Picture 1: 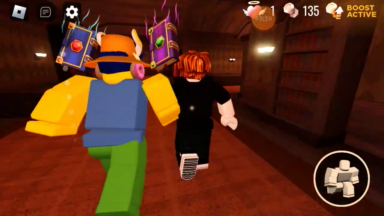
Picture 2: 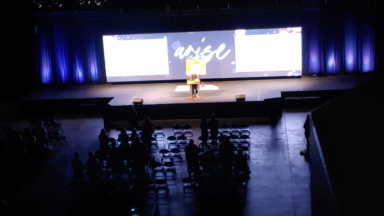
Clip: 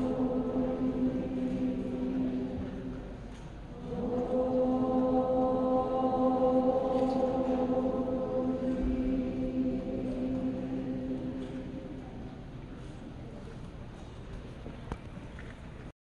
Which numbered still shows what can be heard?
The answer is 2